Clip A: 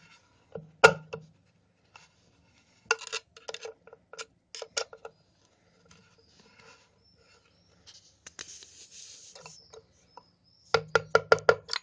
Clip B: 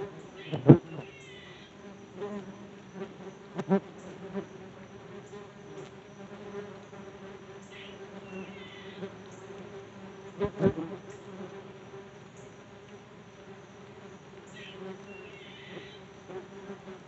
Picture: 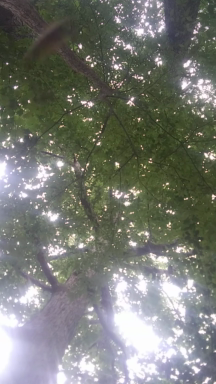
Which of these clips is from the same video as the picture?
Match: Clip B